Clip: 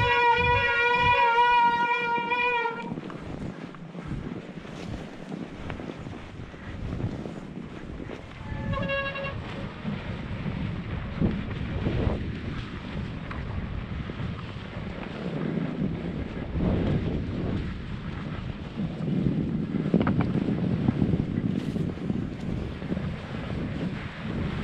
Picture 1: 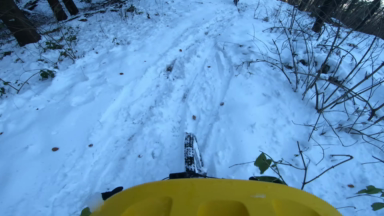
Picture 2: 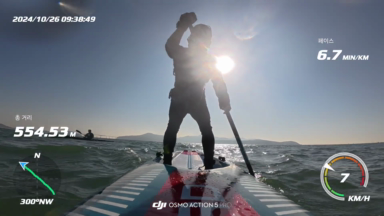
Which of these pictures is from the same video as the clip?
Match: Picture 1